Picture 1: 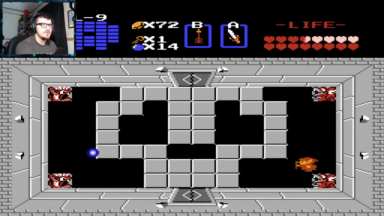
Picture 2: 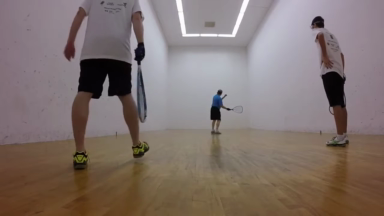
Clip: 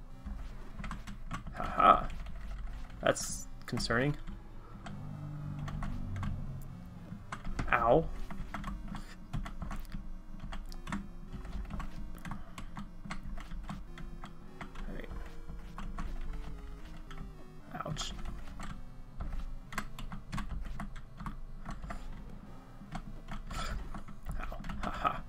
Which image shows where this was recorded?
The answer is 1